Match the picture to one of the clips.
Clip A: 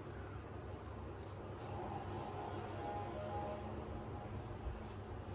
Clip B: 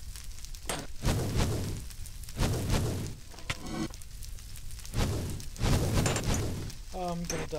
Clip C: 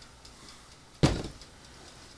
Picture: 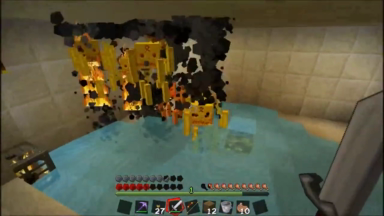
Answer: B